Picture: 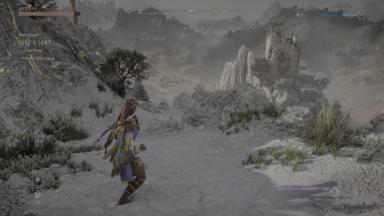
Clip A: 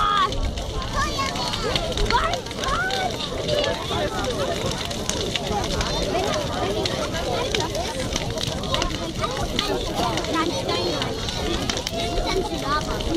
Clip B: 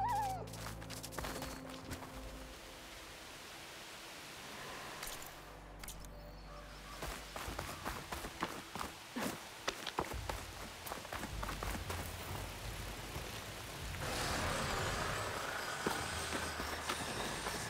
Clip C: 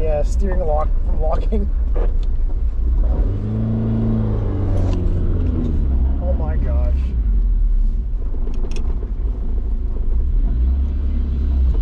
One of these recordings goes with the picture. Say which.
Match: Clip B